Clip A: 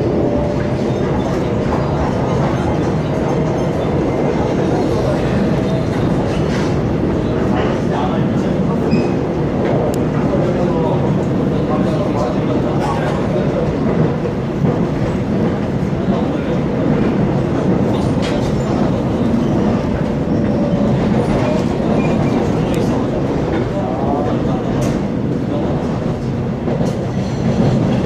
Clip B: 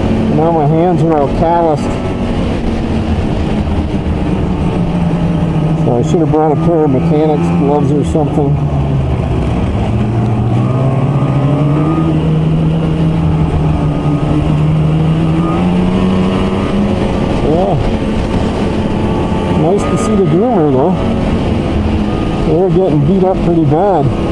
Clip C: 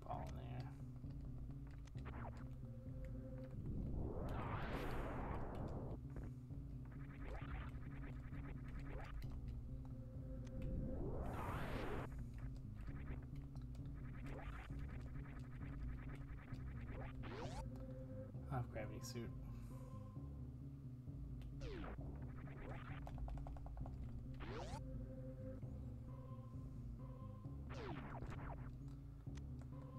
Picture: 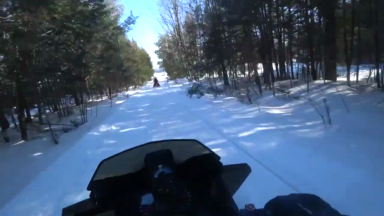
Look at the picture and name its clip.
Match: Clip B